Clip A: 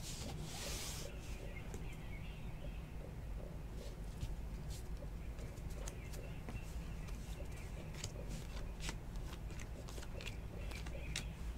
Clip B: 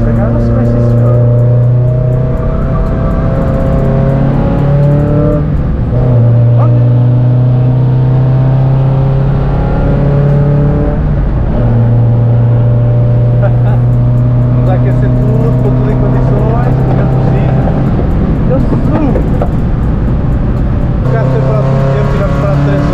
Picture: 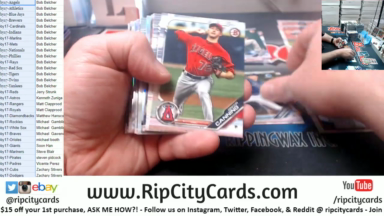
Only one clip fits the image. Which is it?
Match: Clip A